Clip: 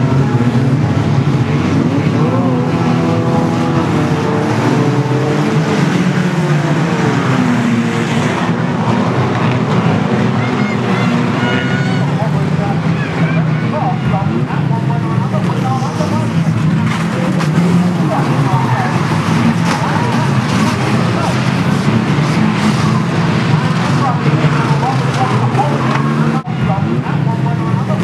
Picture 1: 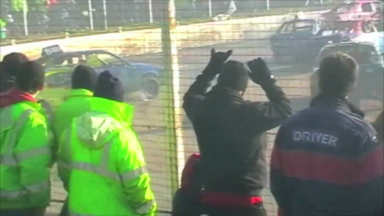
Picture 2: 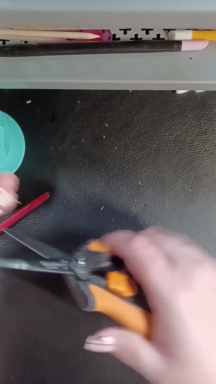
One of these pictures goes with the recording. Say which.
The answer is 1